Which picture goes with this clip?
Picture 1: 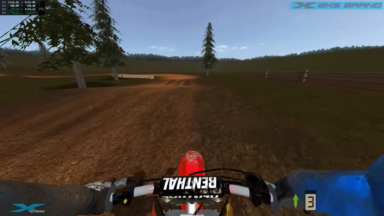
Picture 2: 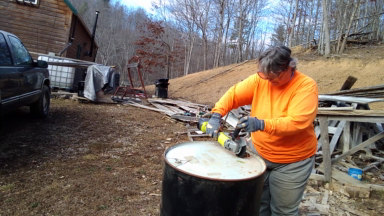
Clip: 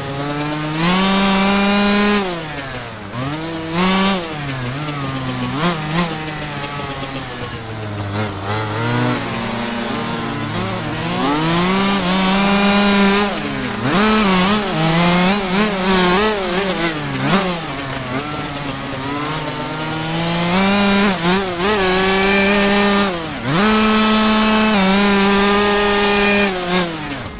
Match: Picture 1